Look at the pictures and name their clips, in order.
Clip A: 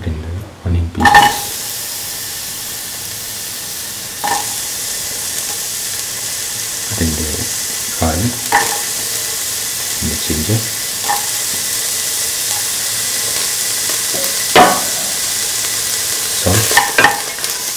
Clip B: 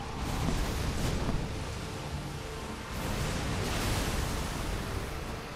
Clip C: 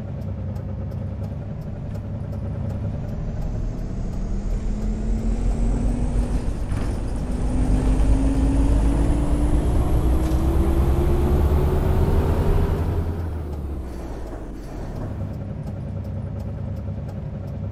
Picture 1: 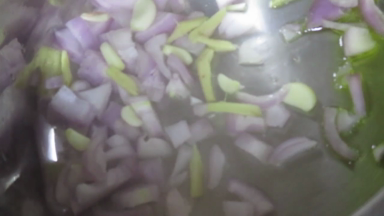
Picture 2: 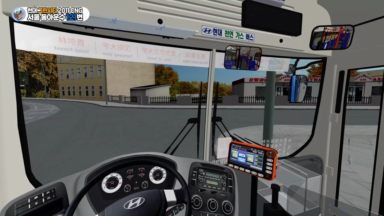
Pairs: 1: A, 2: C